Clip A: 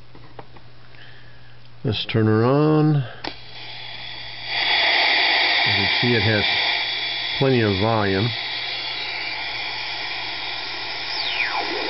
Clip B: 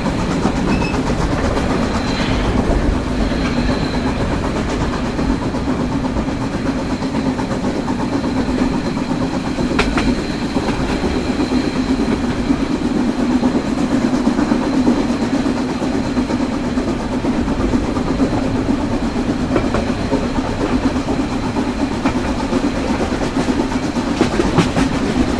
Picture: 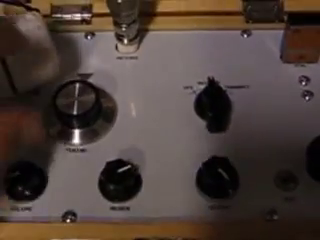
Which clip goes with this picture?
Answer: A